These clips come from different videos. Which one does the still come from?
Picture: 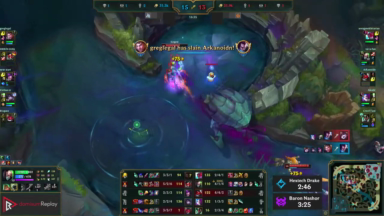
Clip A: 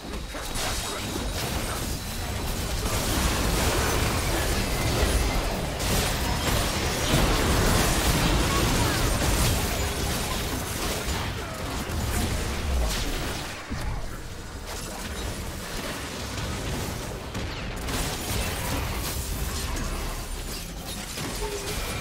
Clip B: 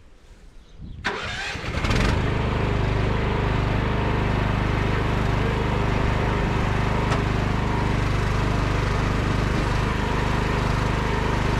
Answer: A